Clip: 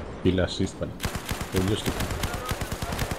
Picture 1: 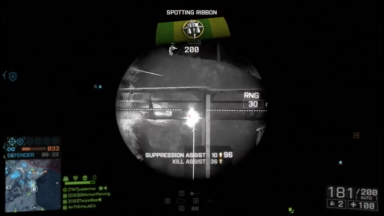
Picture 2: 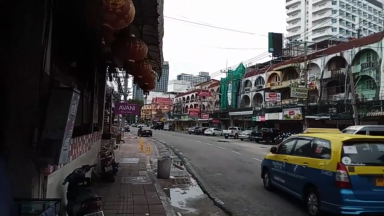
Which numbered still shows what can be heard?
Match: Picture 1